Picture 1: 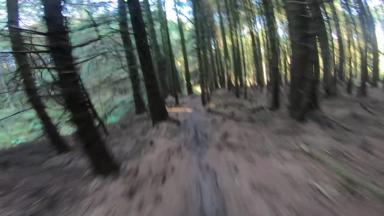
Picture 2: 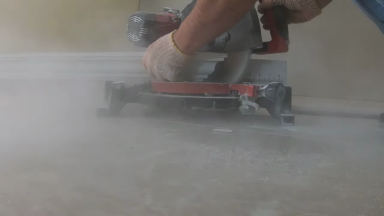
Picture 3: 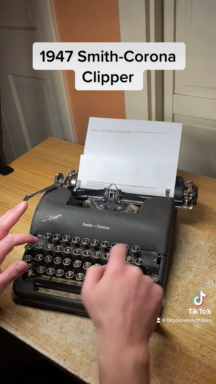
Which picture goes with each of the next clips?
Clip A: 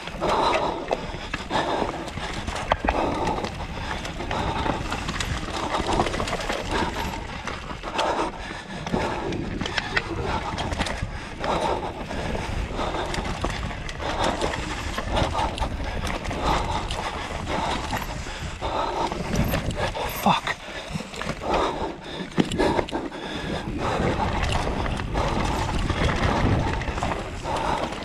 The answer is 1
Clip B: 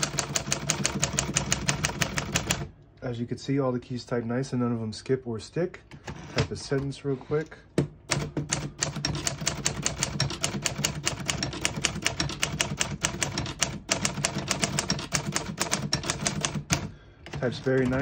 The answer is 3